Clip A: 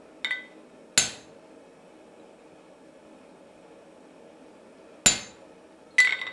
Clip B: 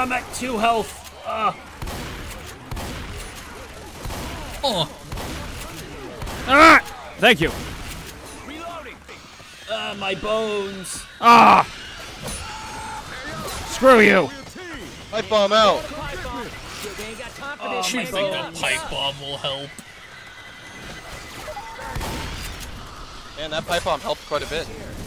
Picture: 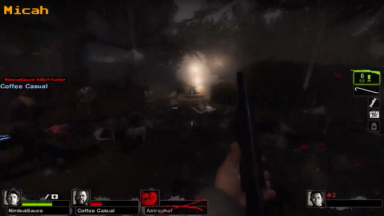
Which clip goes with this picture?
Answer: B